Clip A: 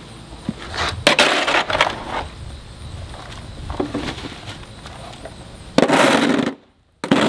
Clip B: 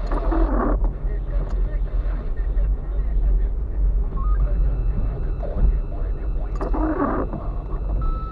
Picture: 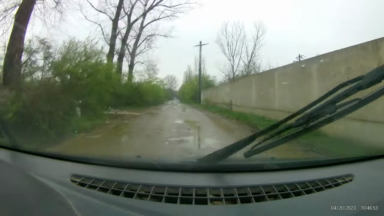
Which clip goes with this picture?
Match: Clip B